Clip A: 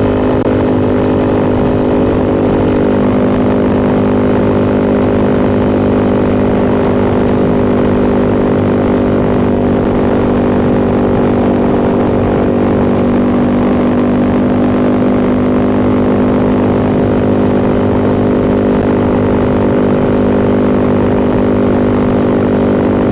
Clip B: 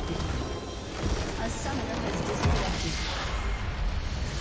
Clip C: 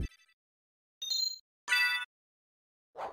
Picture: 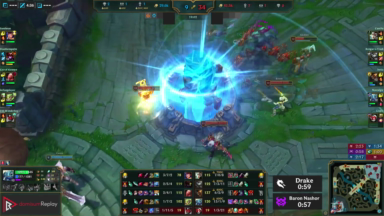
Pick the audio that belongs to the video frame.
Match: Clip B